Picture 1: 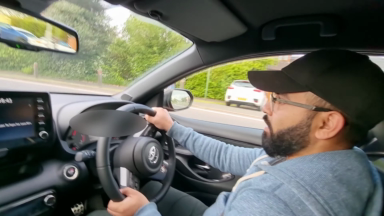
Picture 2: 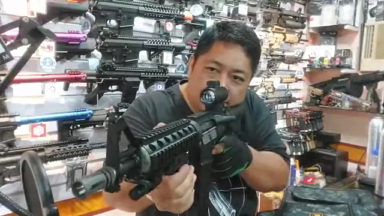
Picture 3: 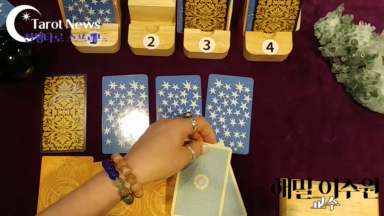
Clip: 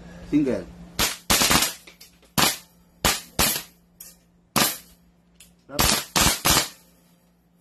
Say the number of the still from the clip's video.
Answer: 2